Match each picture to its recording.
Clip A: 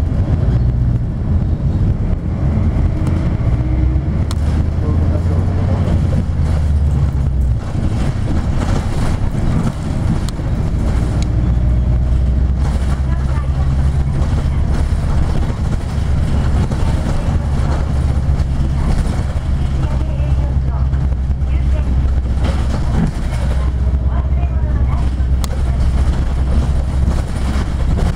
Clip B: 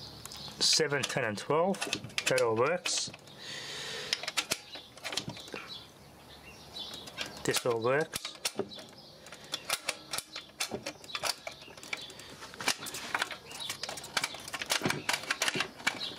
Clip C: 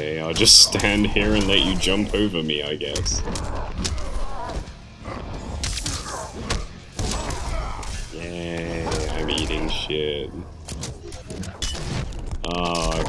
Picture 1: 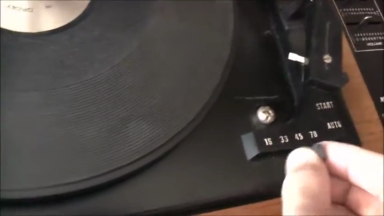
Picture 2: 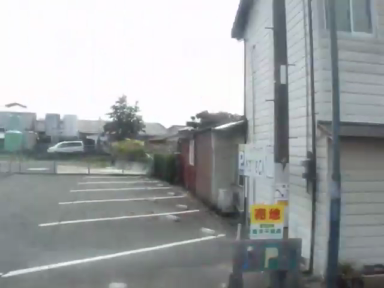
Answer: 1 B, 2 A